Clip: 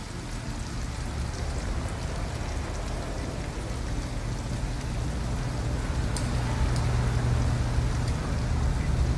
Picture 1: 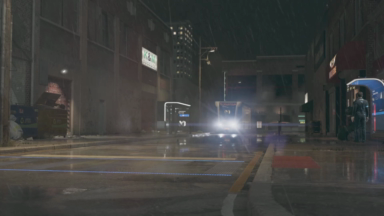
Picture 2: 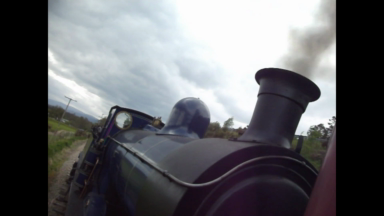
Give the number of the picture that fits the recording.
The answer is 1